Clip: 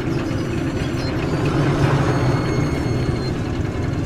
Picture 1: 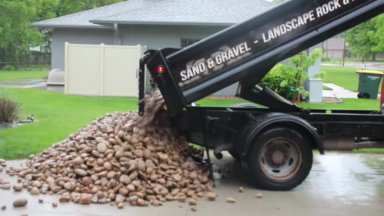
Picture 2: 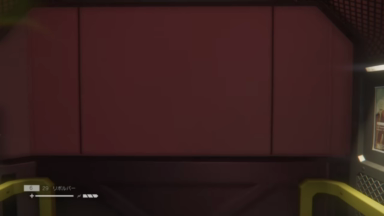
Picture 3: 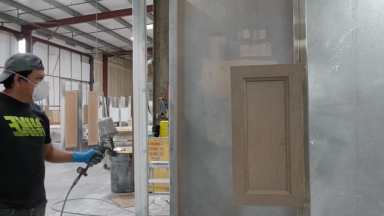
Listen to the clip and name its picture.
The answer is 2